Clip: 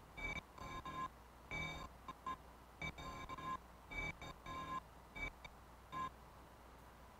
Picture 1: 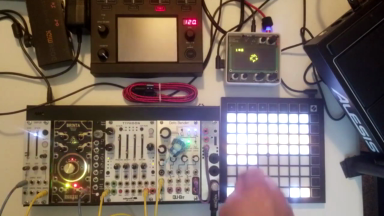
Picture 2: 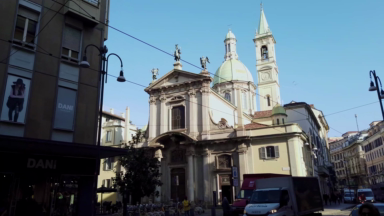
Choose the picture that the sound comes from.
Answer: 1